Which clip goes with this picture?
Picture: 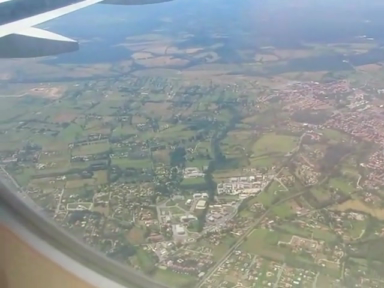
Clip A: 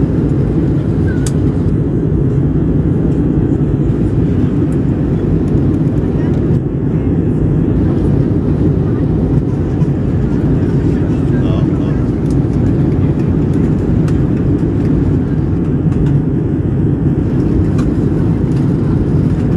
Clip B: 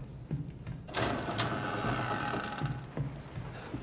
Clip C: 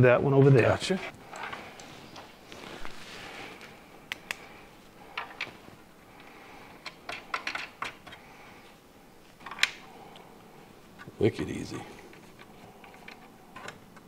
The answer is A